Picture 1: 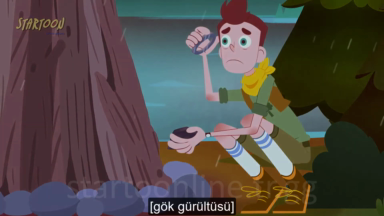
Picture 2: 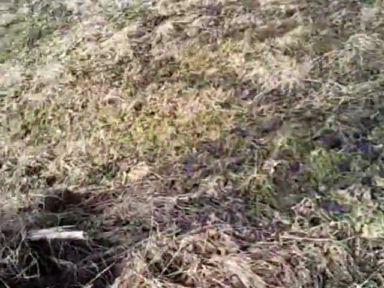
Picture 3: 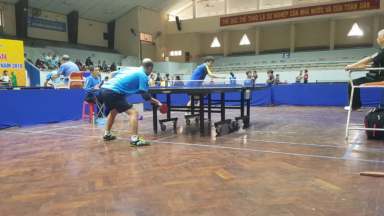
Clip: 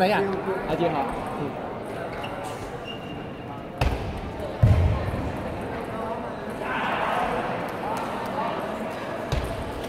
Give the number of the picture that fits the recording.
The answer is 3